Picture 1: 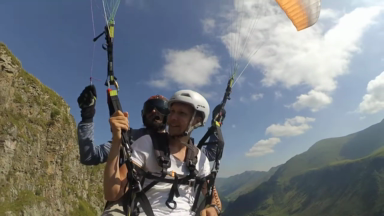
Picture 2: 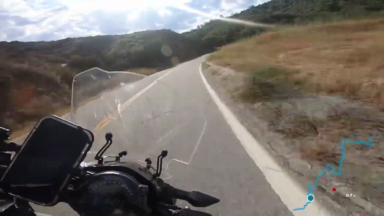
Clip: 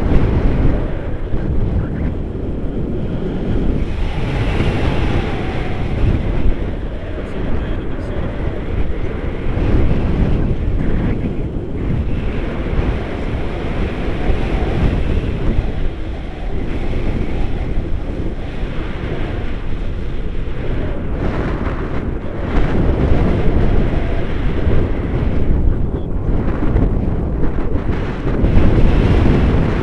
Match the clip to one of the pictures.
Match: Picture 1